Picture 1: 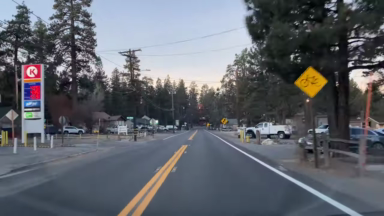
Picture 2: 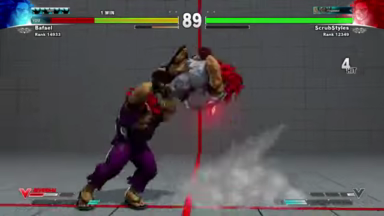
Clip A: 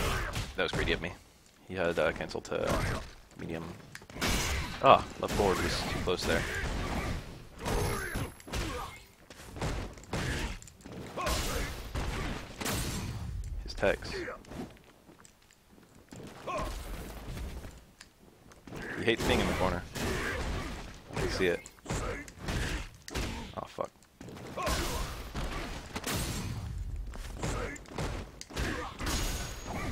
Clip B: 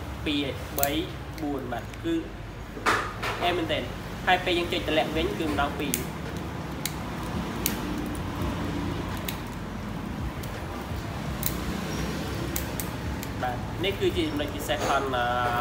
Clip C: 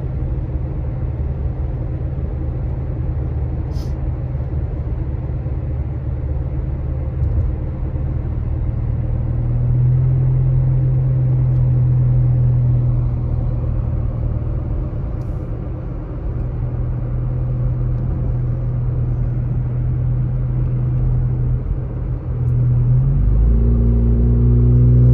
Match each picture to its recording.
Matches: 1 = C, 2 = A